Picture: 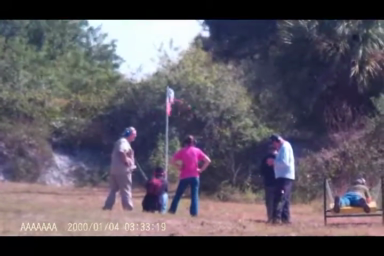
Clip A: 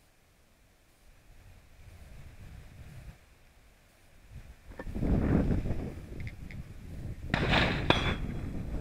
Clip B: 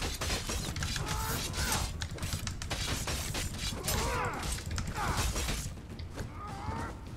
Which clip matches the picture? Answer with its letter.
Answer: A